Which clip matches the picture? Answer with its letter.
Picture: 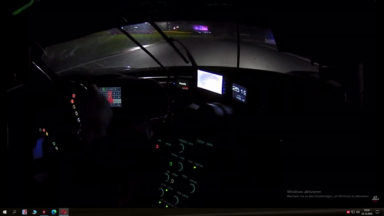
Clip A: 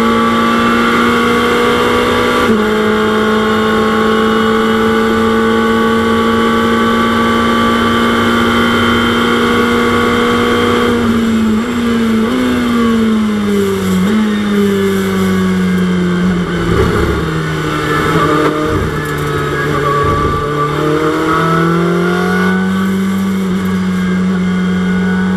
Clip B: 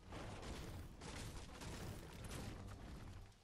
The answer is A